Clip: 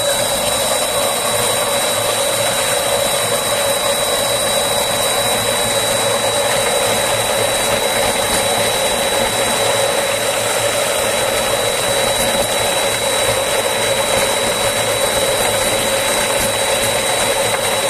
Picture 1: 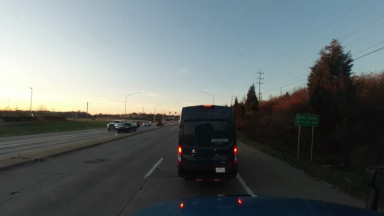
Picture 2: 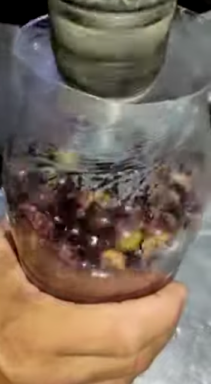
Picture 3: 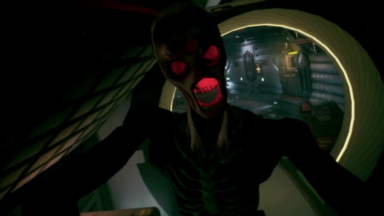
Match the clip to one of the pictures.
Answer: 2